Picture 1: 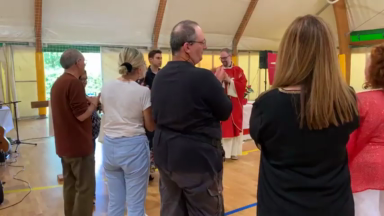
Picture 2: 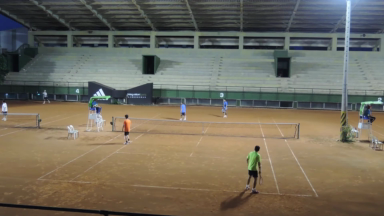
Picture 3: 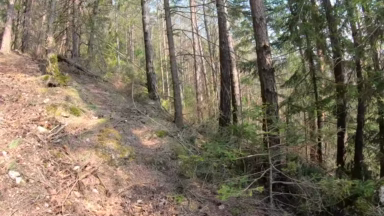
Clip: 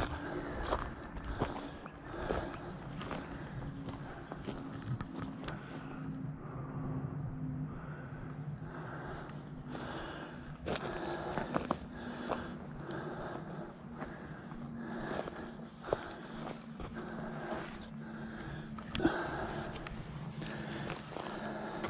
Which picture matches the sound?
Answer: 3